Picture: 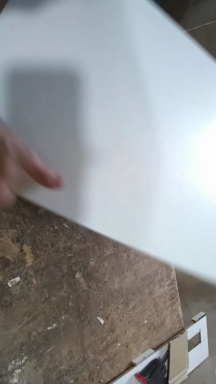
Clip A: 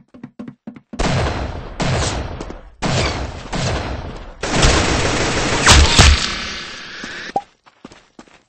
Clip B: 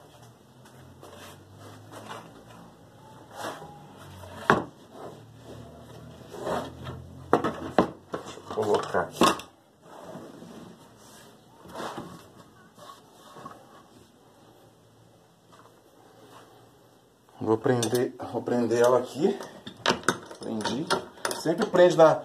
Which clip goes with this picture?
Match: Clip B